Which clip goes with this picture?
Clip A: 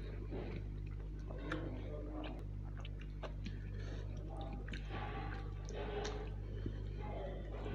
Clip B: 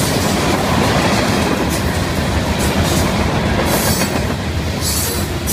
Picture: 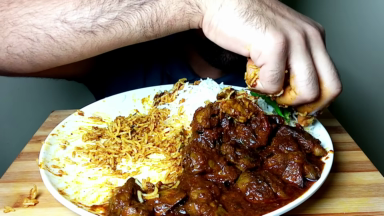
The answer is A